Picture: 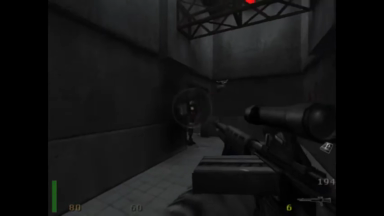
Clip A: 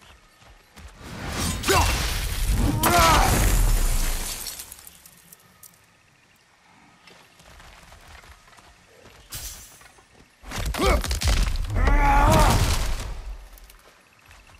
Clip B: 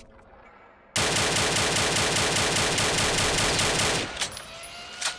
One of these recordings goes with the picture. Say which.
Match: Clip B